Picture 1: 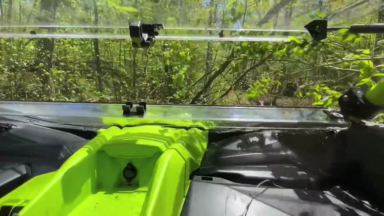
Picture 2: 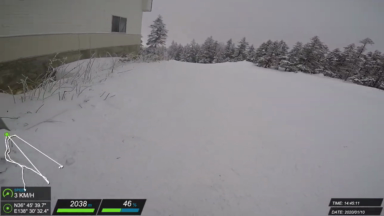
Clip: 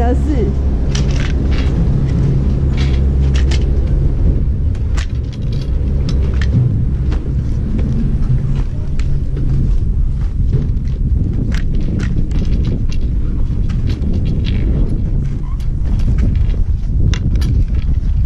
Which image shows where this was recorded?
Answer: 2